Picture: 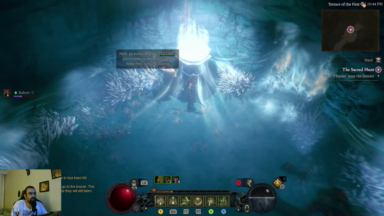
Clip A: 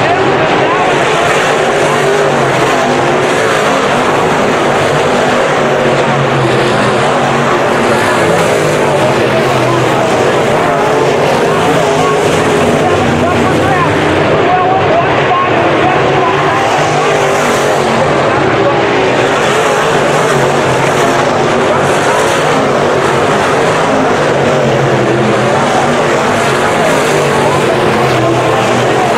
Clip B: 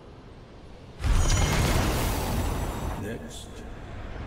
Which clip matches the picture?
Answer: B